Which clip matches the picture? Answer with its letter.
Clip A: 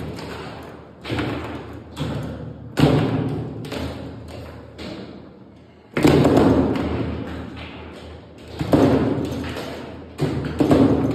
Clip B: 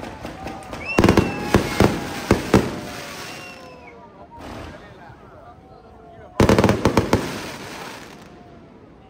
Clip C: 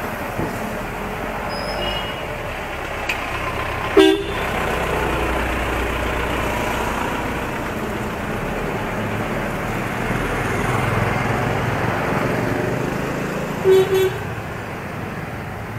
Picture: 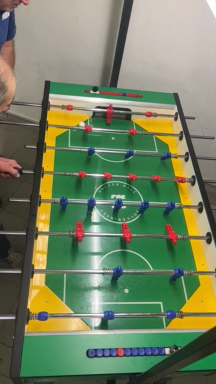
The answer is A